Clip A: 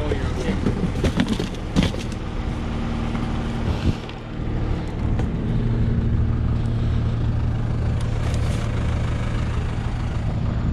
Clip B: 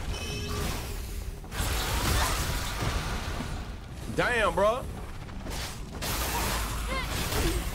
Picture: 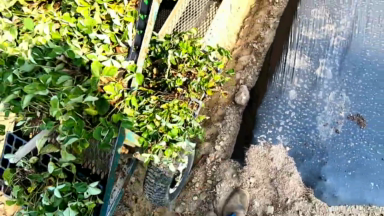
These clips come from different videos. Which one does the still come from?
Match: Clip A